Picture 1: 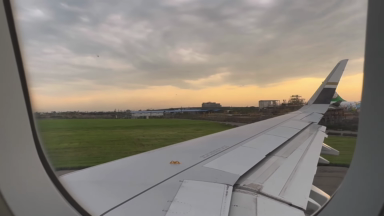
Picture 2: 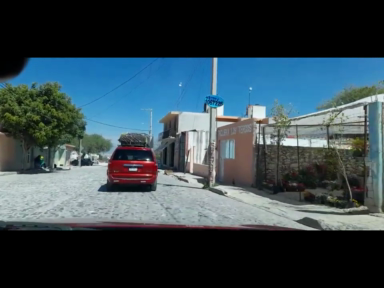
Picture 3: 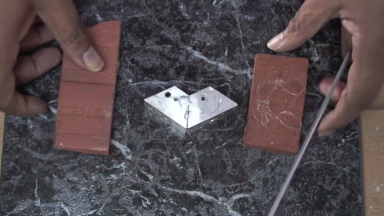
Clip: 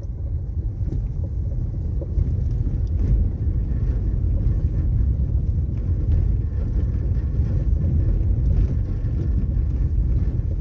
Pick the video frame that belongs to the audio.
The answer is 2